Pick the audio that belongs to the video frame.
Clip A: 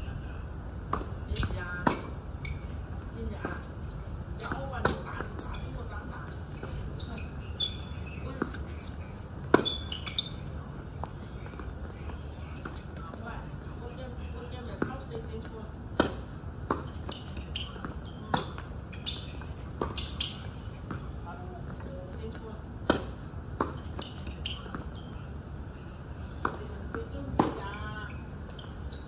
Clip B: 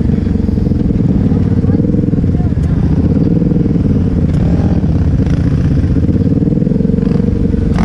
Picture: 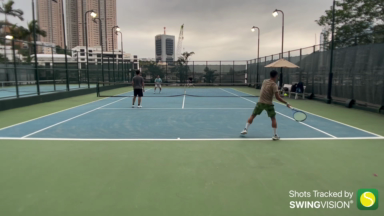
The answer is A